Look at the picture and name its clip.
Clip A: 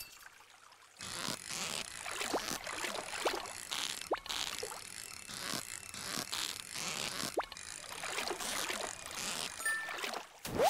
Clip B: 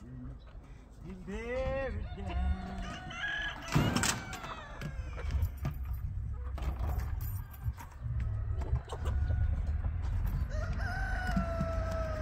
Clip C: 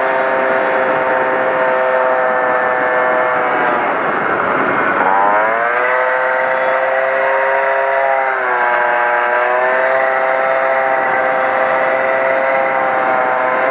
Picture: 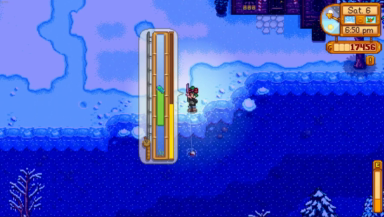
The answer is A